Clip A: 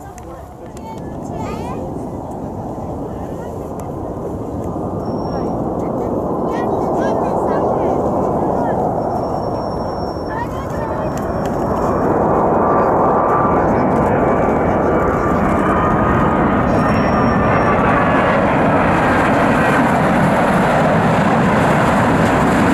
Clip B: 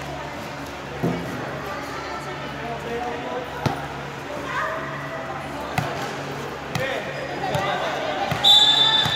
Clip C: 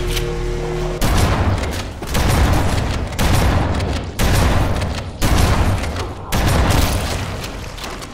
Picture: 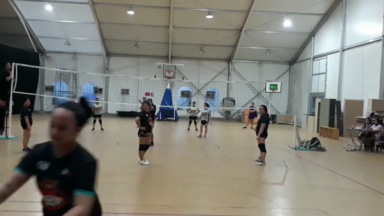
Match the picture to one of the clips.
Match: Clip B